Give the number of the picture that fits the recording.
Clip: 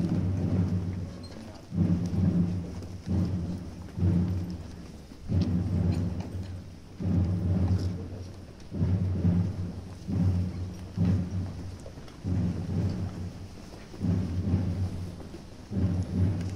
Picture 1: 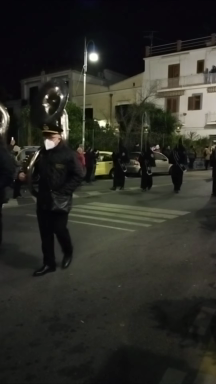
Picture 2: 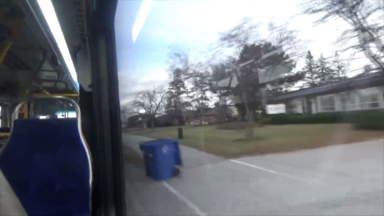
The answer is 1